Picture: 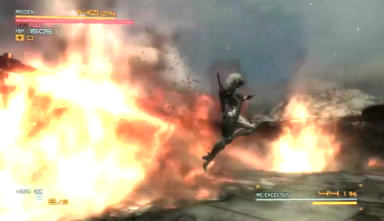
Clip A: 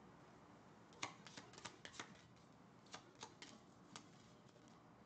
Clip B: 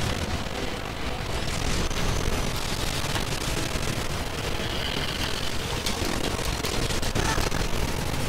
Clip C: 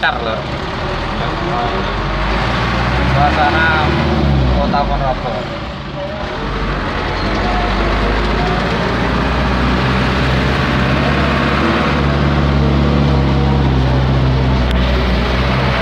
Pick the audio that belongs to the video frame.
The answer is B